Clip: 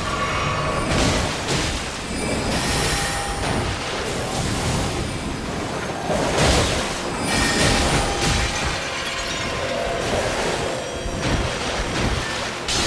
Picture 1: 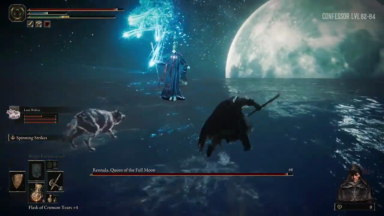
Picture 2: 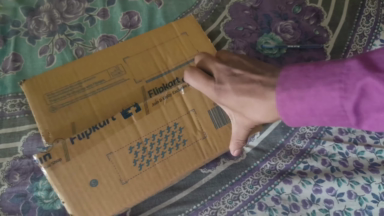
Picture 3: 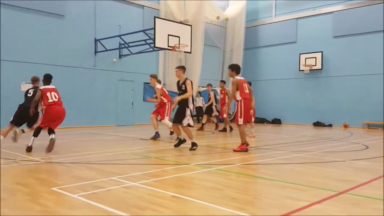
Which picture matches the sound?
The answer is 1